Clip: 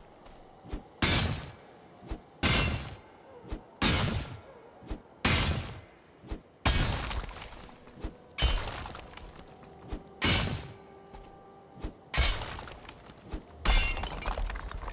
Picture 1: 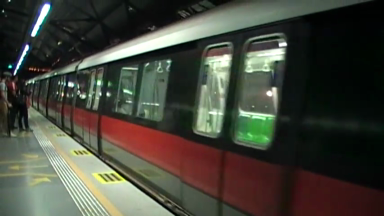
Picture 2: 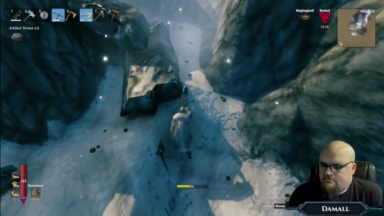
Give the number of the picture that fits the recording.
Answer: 2